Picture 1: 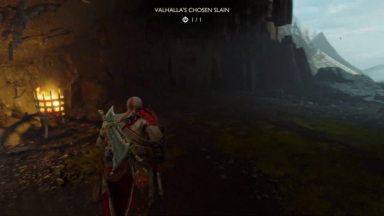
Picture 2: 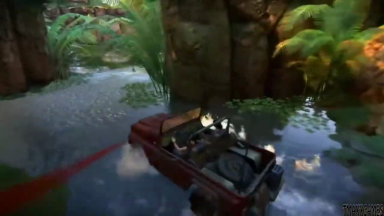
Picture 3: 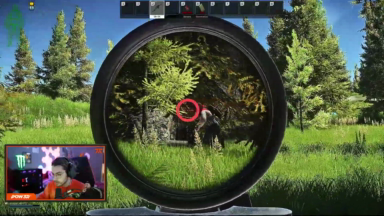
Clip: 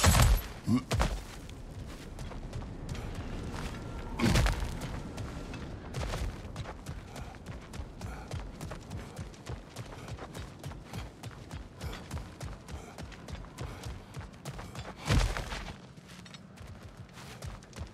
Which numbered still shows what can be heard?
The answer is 1